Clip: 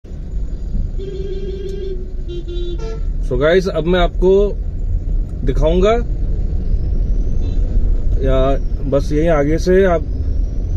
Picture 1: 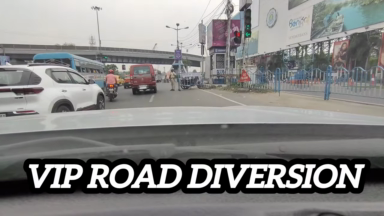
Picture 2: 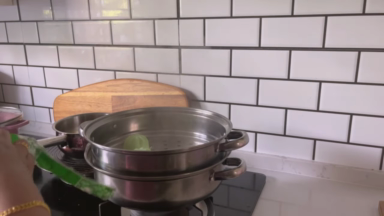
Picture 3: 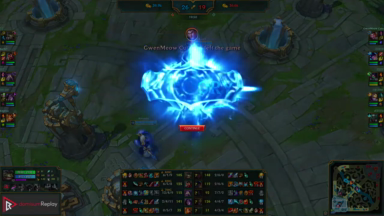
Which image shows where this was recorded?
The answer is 1